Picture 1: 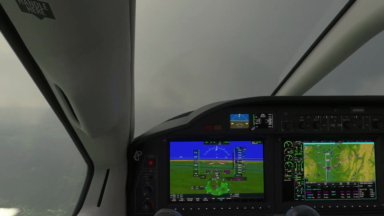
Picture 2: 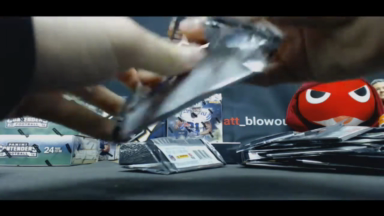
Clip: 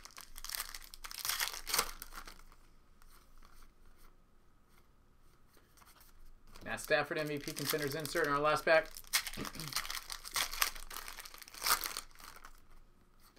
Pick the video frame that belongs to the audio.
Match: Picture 2